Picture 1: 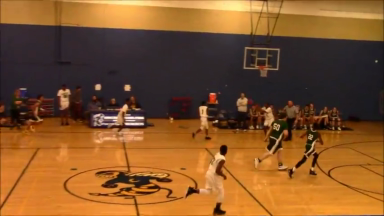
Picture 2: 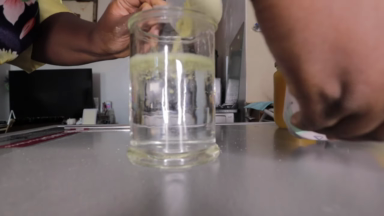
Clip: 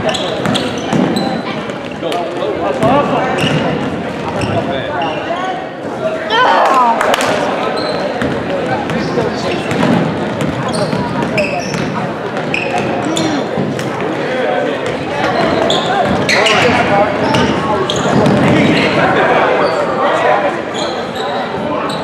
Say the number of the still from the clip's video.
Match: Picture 1